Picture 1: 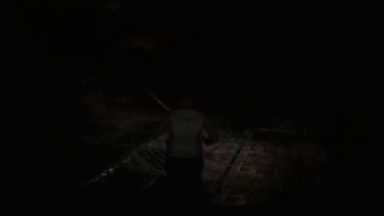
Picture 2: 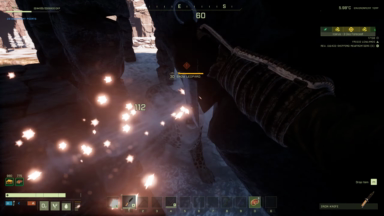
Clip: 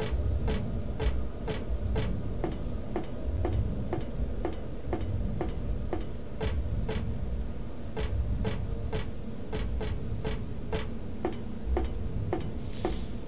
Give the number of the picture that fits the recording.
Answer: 1